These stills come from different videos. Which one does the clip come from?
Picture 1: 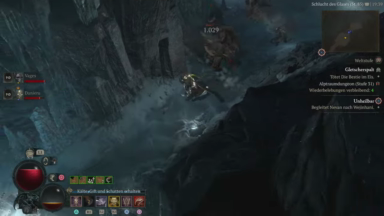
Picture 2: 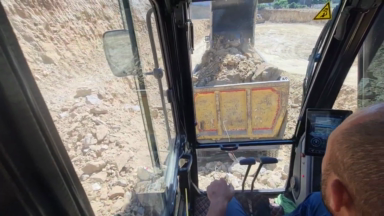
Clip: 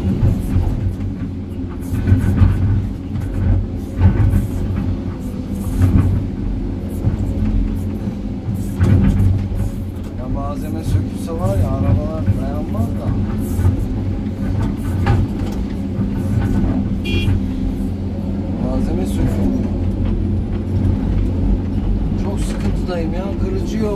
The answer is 2